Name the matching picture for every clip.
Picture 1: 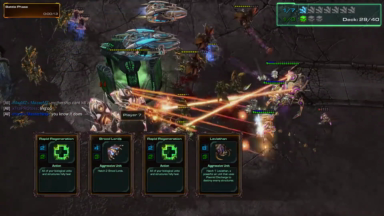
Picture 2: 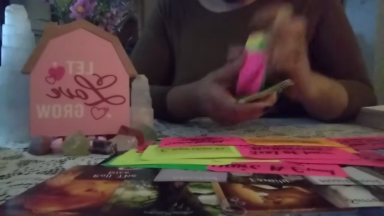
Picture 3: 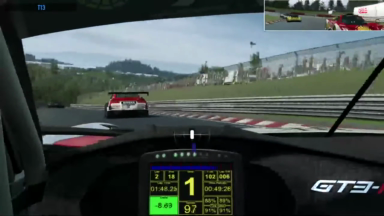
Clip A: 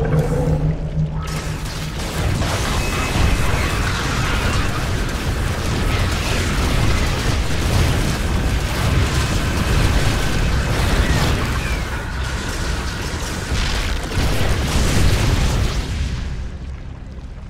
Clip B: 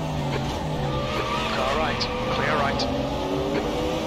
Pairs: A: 1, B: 3